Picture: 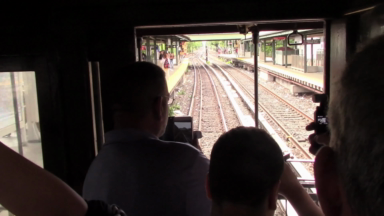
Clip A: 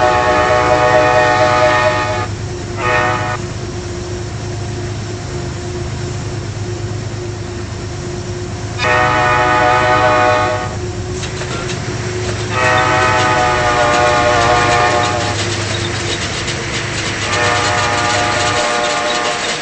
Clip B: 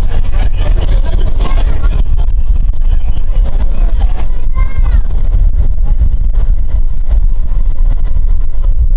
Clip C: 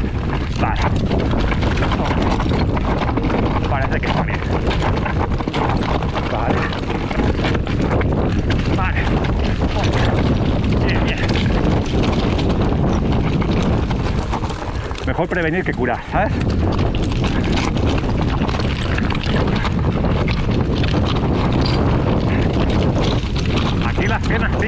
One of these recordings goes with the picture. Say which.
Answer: B